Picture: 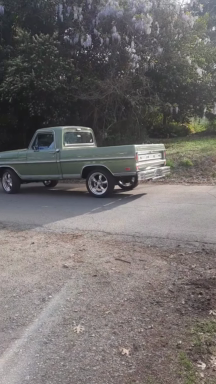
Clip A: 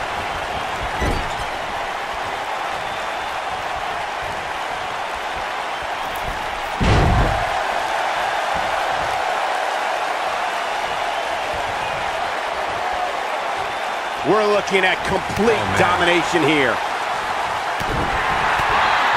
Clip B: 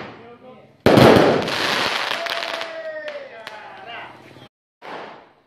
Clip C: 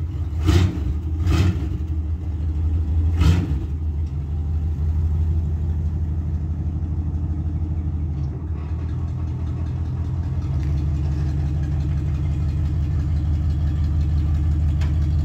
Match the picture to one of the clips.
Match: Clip C